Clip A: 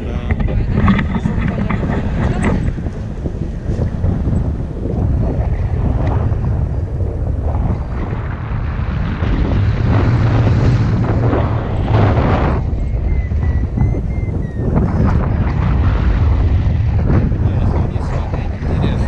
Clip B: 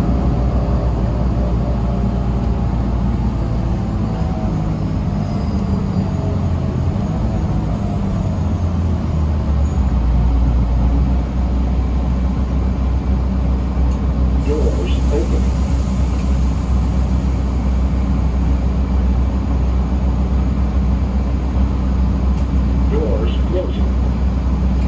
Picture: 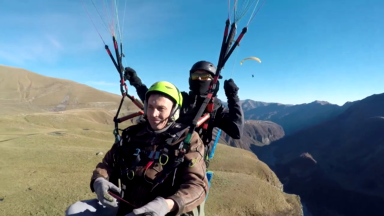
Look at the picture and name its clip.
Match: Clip A